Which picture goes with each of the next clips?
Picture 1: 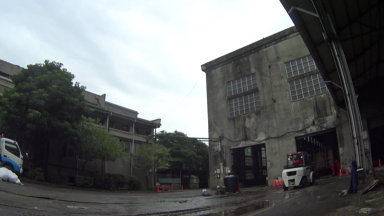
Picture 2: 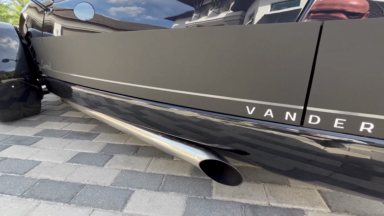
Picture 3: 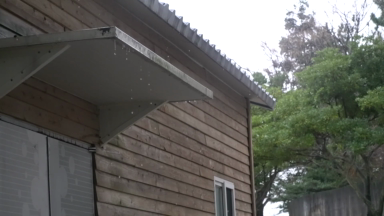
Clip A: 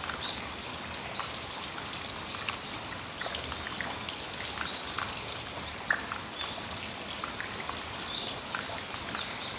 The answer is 3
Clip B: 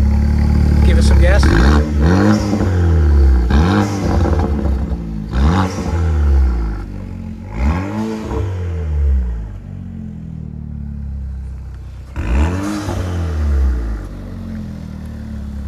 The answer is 2